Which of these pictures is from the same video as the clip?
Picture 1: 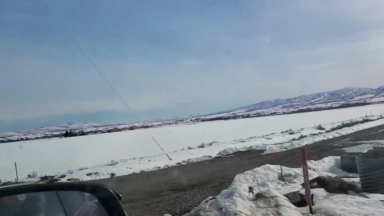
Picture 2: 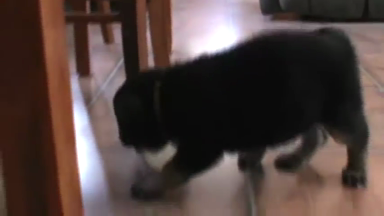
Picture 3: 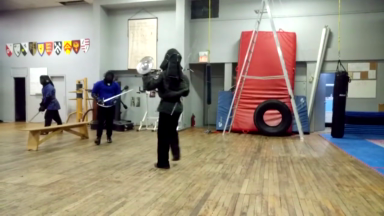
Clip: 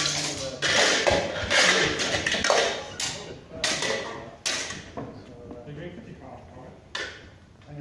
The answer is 3